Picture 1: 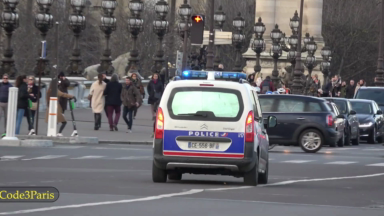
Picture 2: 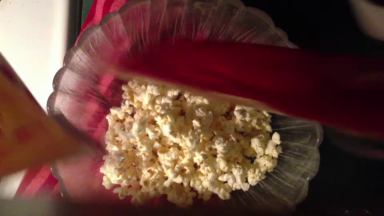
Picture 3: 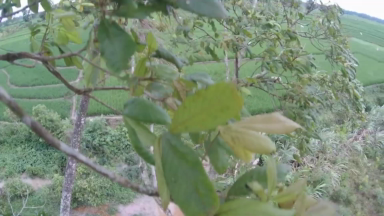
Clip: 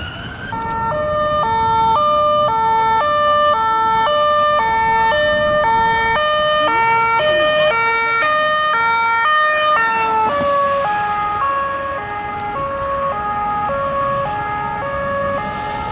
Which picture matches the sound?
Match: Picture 1